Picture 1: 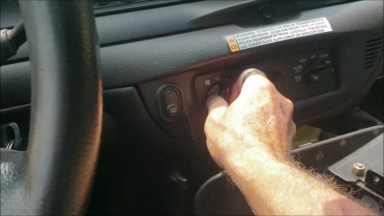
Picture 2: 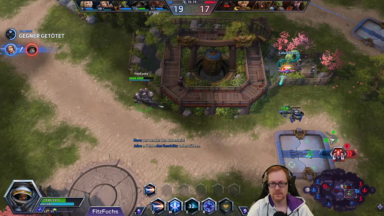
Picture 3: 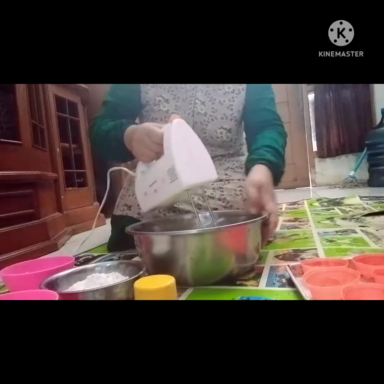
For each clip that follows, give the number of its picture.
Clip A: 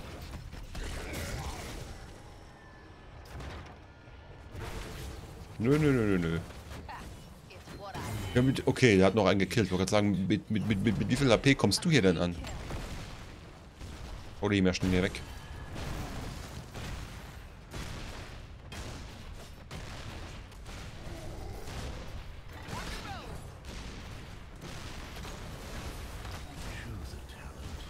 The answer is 2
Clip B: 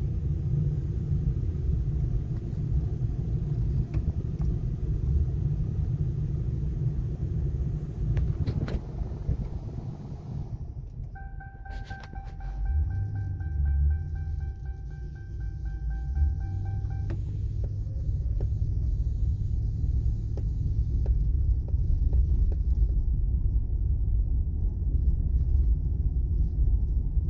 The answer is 1